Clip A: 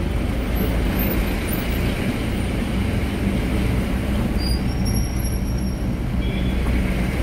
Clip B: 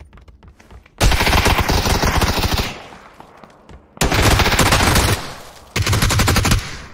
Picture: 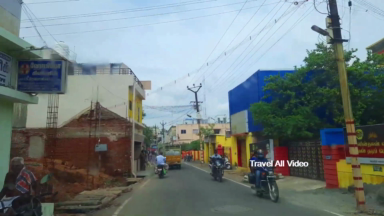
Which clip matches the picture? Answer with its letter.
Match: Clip A